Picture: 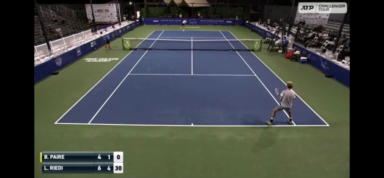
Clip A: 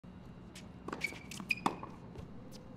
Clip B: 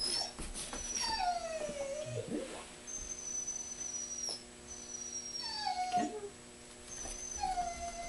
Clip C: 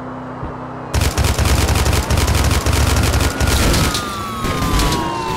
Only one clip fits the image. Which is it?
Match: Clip A